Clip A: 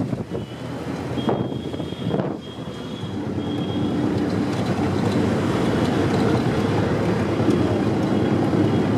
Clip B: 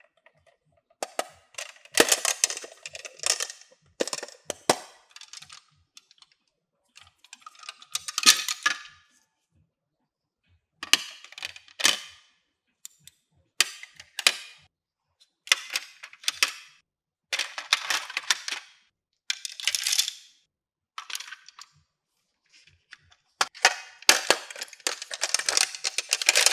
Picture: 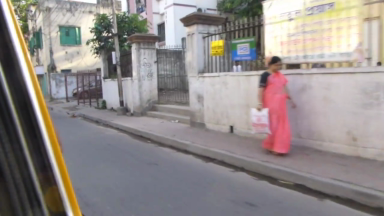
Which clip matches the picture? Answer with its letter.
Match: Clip A